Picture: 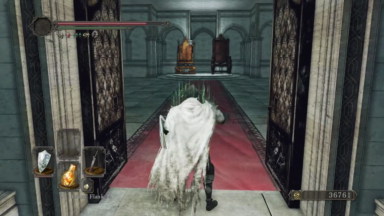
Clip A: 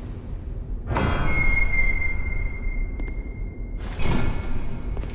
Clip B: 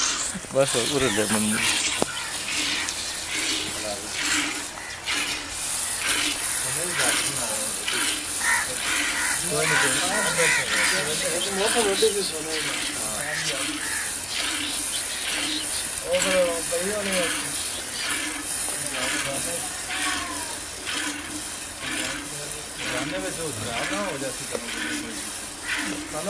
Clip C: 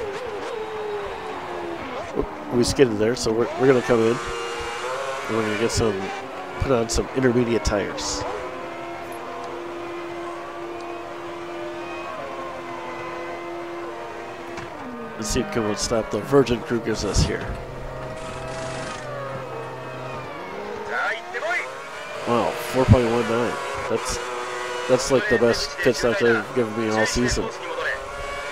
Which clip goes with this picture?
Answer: A